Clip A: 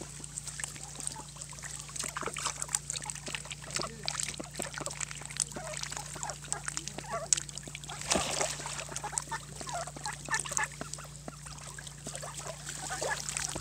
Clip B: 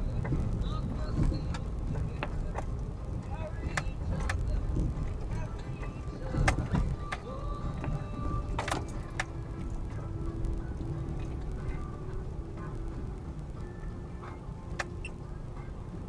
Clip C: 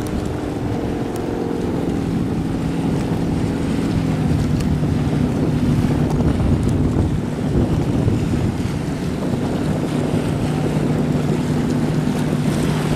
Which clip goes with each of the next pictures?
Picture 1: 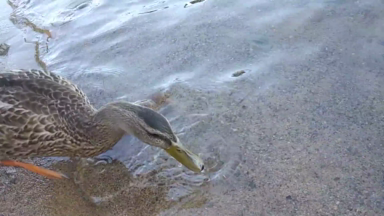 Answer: A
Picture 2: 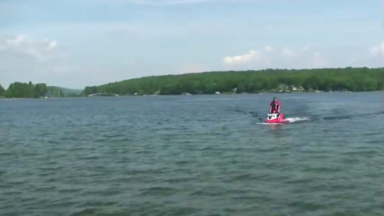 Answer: C